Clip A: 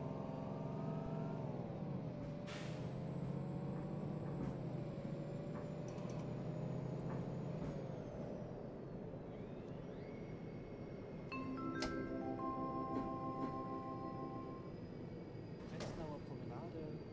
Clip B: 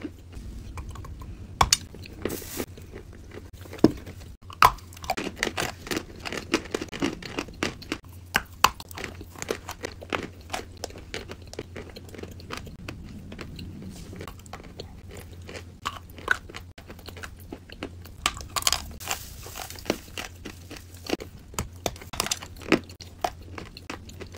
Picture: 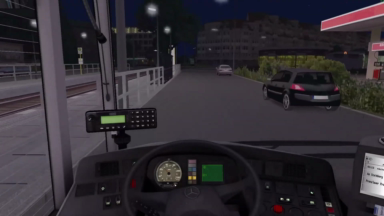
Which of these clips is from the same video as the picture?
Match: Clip A